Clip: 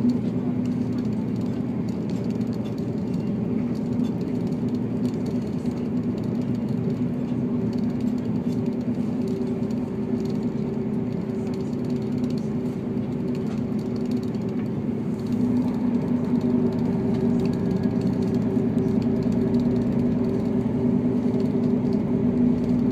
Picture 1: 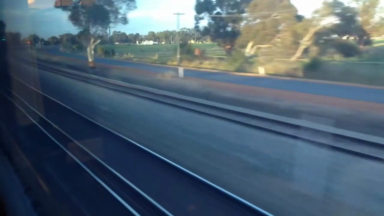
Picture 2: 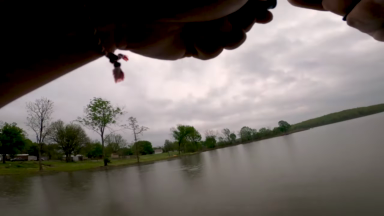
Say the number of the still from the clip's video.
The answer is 1